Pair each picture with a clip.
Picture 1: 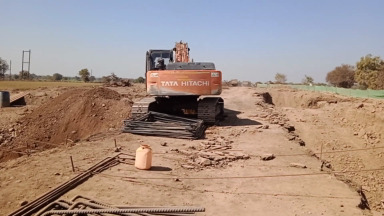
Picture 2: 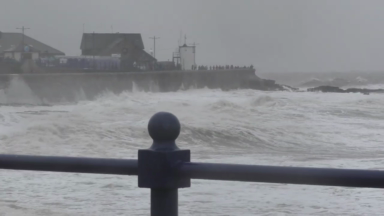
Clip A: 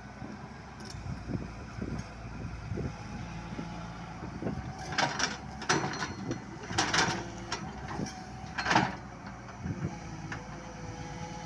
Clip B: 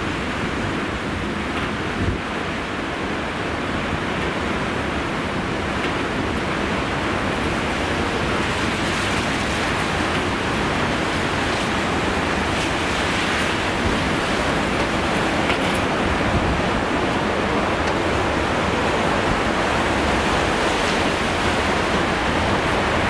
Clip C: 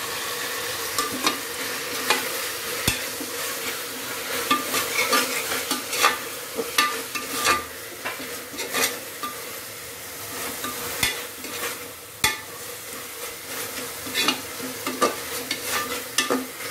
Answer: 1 A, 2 B